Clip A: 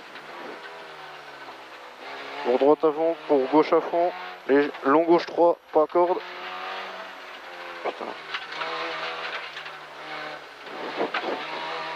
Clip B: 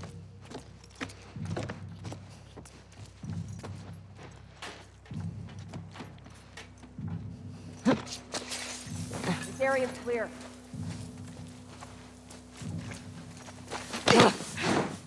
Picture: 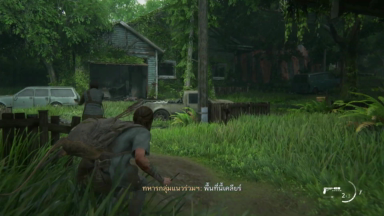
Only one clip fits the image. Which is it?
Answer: B